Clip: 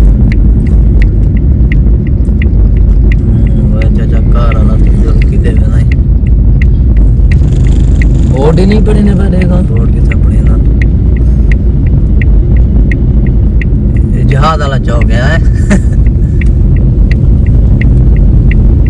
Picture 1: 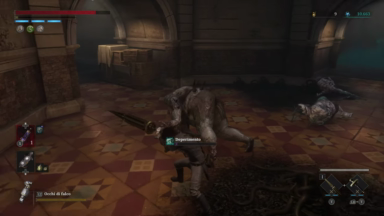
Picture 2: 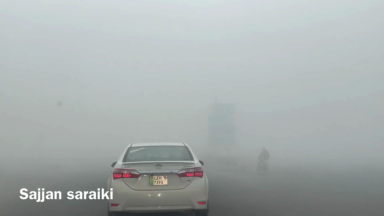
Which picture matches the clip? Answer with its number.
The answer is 2